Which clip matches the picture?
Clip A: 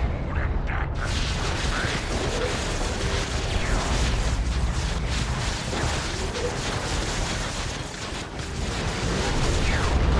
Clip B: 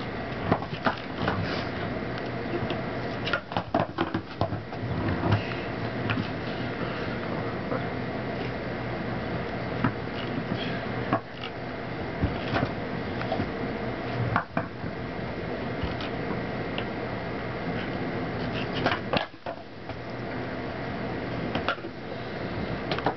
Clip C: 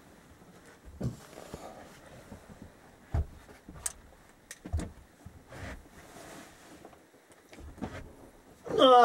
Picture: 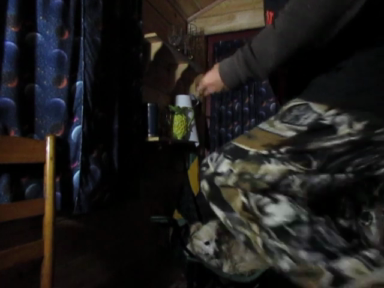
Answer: C